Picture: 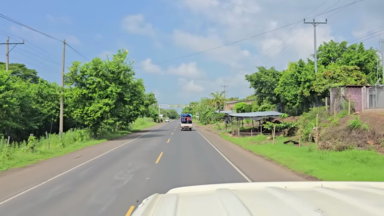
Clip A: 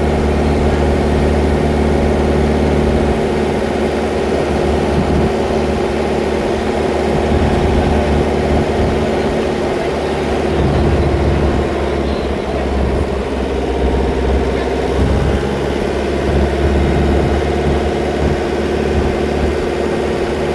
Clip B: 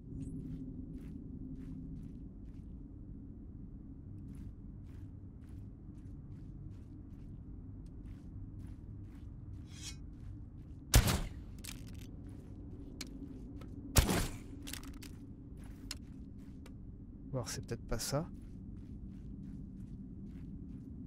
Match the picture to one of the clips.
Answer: A